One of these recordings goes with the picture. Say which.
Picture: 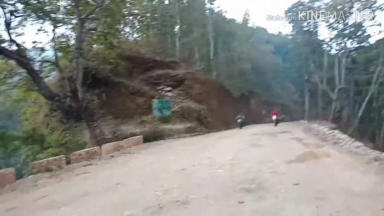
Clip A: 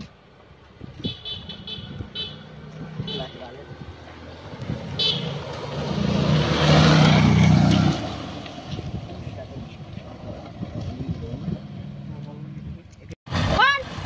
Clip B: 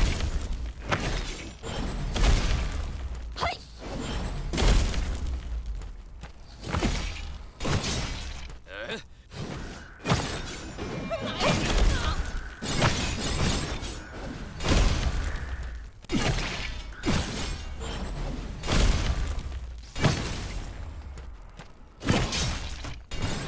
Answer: A